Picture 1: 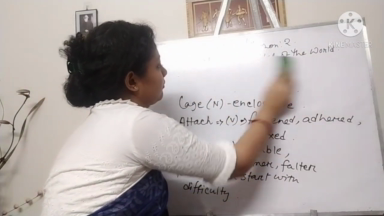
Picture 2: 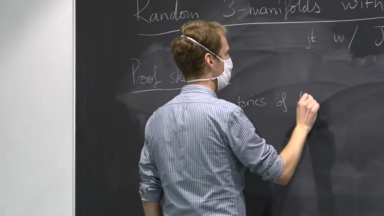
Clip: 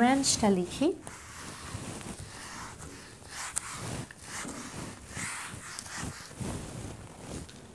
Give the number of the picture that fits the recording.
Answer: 1